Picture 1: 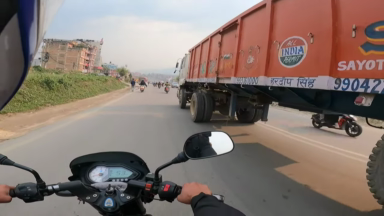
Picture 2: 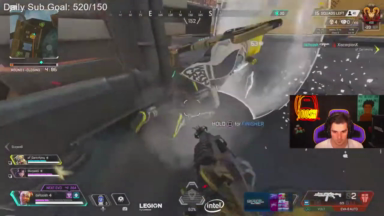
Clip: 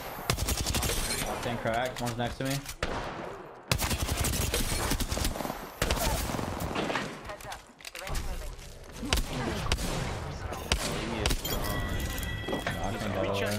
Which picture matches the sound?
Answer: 2